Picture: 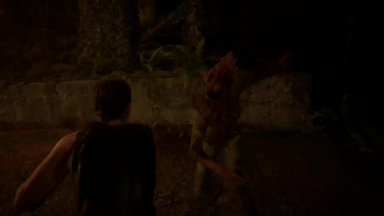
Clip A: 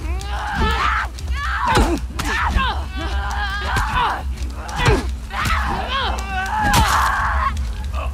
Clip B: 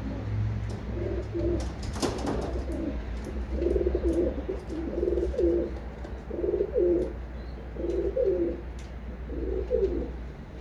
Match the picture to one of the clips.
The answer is A